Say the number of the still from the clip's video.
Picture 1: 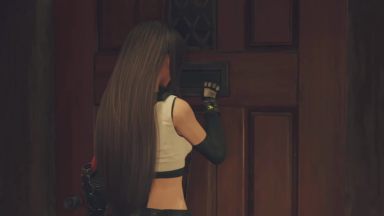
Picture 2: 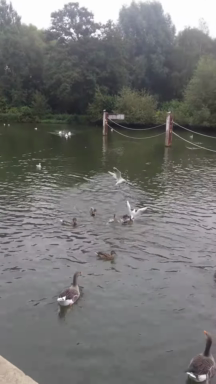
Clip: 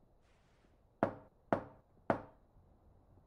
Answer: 1